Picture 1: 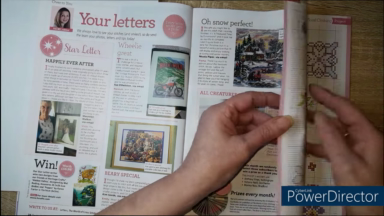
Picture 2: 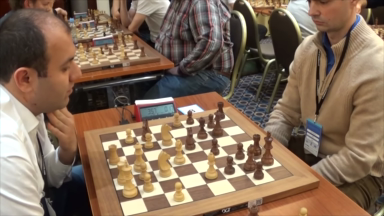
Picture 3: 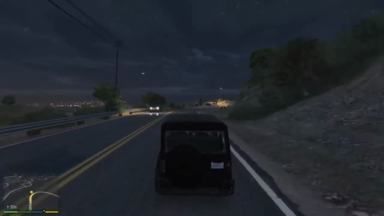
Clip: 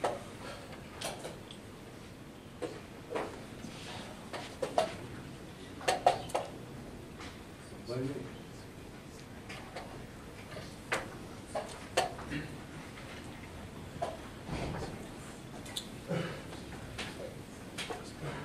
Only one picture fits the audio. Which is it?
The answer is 2